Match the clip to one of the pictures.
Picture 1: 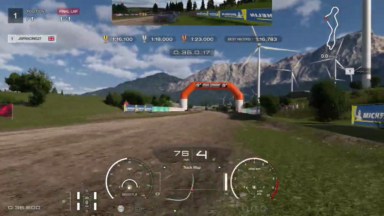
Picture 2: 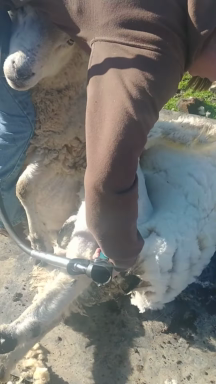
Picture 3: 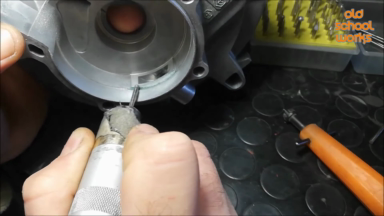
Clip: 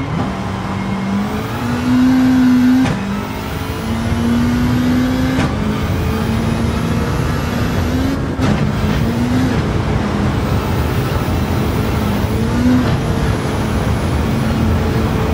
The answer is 1